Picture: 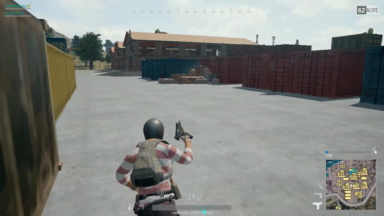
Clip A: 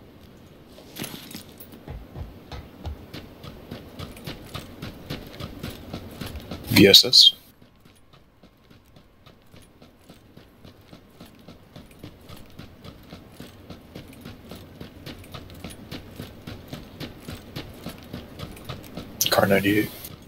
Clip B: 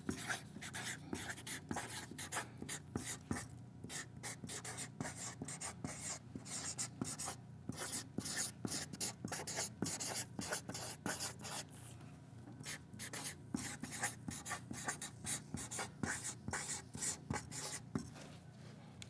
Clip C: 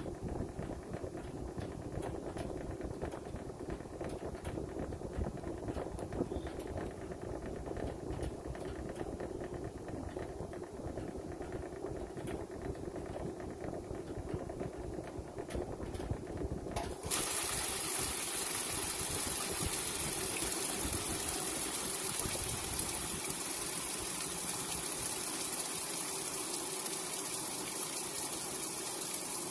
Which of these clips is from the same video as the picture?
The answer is A